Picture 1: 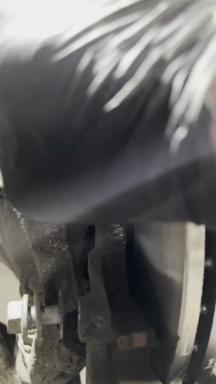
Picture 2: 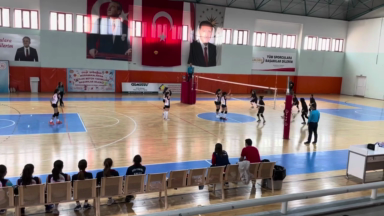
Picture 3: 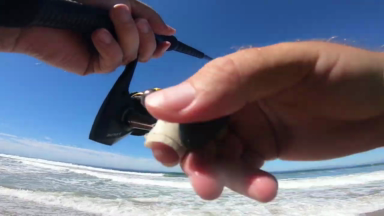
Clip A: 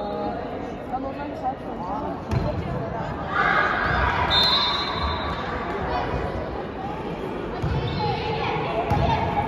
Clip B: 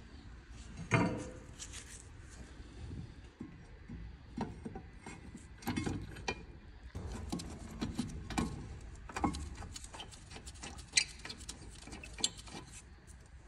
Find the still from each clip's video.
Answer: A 2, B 1